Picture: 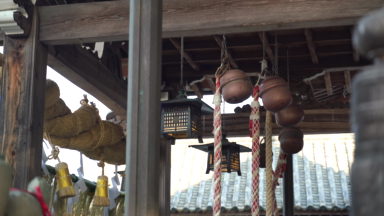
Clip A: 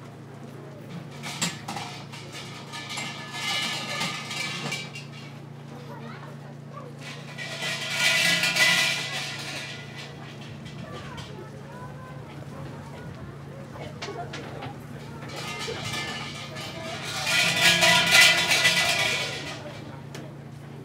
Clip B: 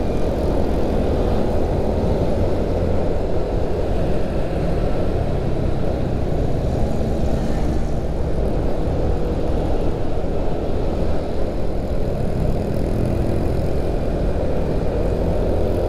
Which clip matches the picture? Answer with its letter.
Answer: A